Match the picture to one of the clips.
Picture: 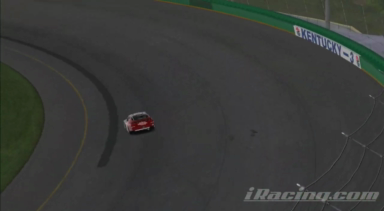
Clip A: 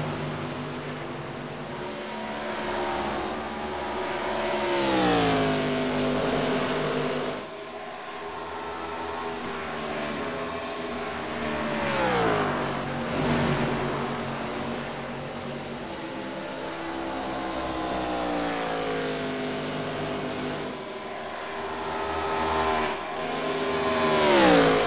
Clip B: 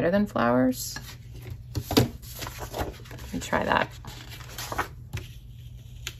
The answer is A